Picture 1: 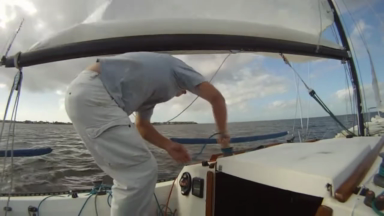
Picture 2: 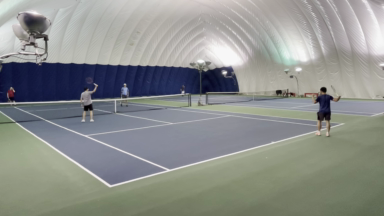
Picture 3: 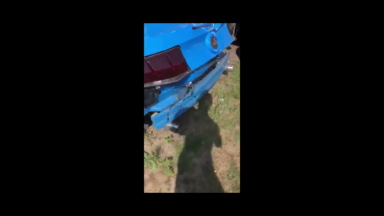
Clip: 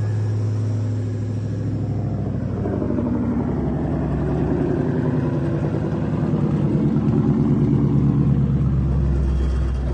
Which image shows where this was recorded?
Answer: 3